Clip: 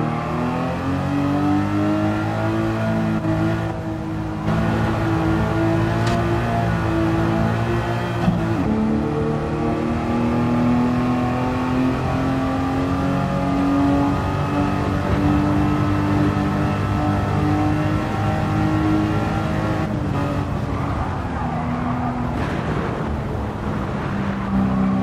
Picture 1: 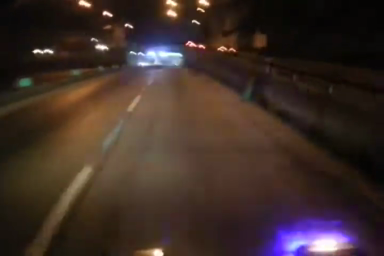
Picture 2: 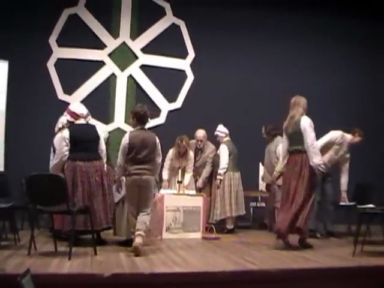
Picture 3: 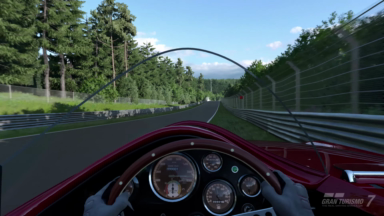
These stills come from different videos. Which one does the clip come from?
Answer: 3